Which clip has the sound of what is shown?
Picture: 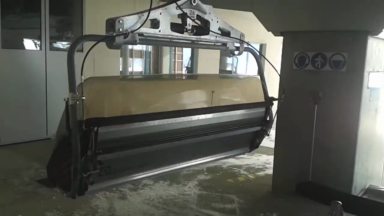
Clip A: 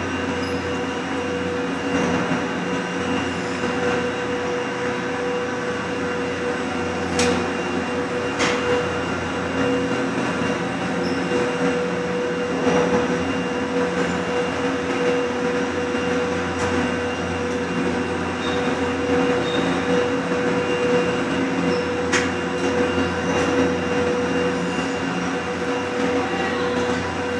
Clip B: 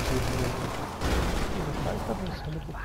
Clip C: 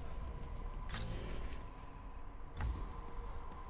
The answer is A